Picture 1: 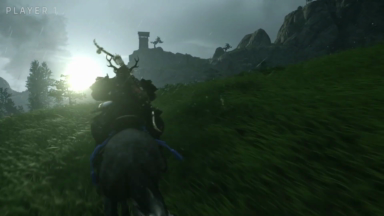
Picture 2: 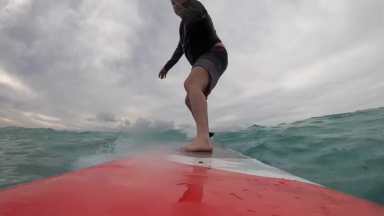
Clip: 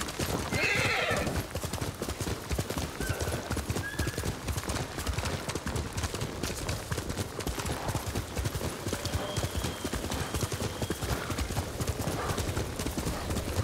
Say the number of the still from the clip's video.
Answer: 1